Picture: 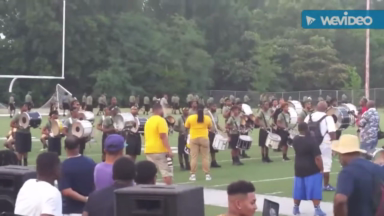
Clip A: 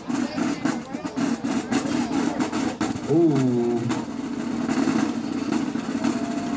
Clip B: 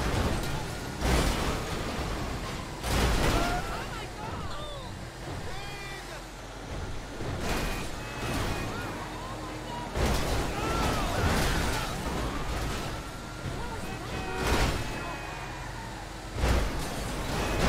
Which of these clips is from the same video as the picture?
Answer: A